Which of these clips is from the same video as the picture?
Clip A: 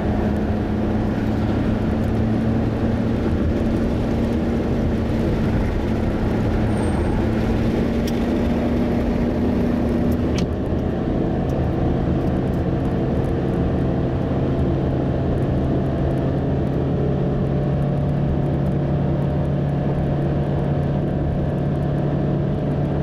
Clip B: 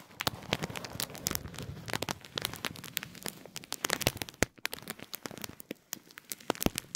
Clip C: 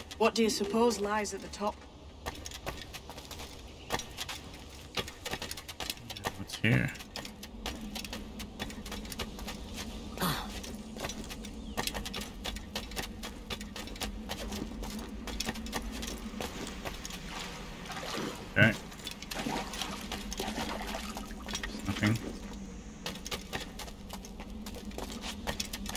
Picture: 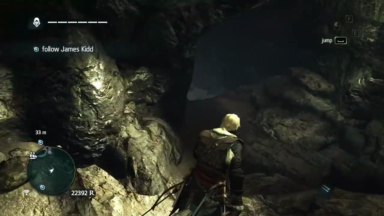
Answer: C